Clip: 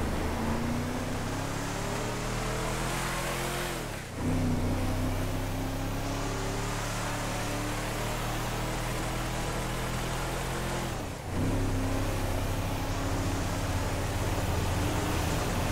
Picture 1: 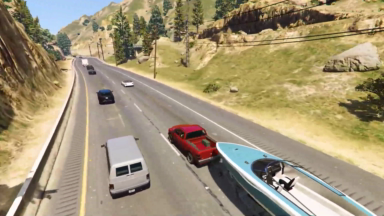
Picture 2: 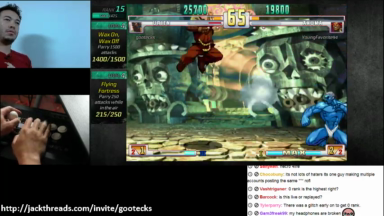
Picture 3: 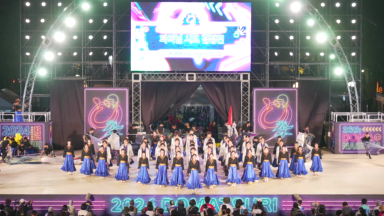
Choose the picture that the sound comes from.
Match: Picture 1